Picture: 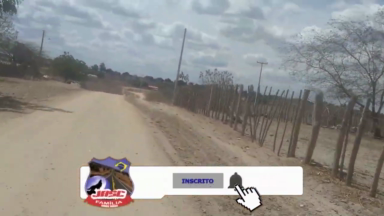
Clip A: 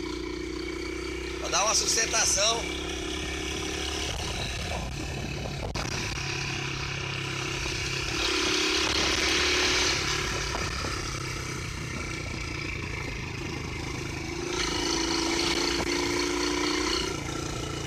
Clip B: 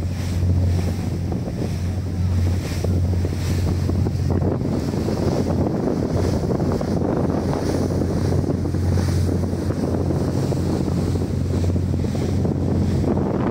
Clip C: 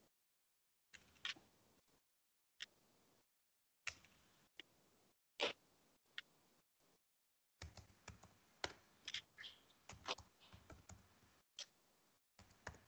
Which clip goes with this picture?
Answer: A